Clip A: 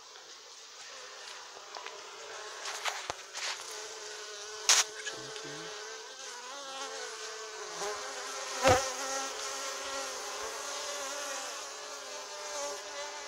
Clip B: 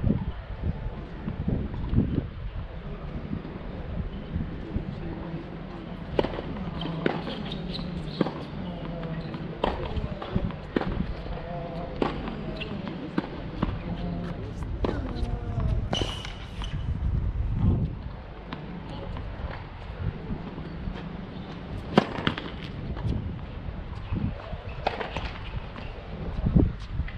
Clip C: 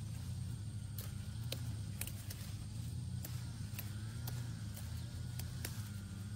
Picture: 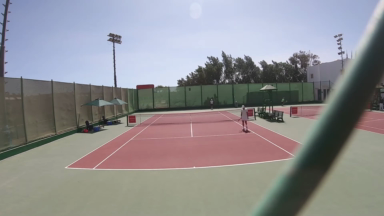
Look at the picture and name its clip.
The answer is B